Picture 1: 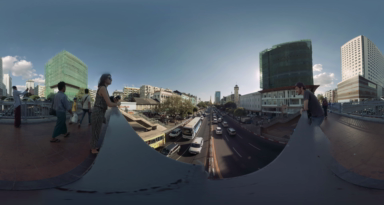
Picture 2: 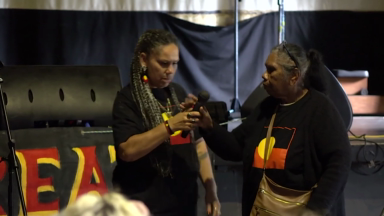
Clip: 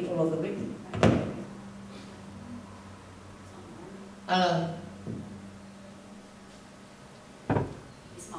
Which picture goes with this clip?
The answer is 2